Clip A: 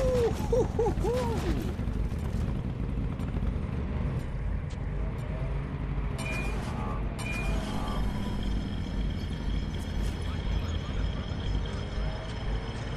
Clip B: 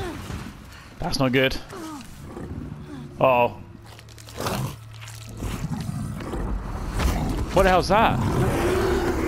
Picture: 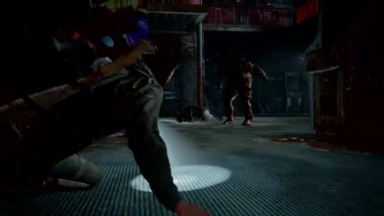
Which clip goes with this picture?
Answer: B